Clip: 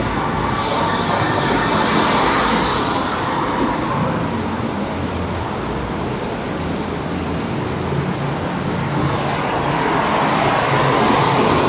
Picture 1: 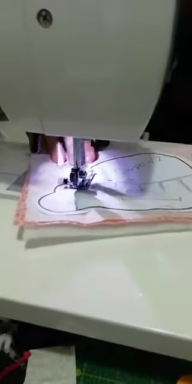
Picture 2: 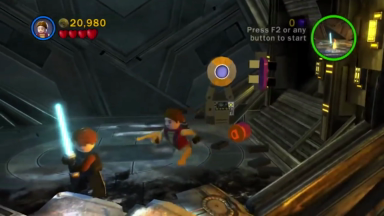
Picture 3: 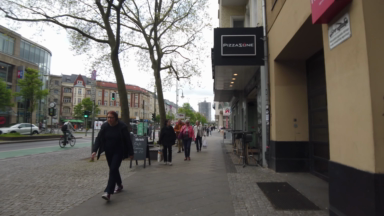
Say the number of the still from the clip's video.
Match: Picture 3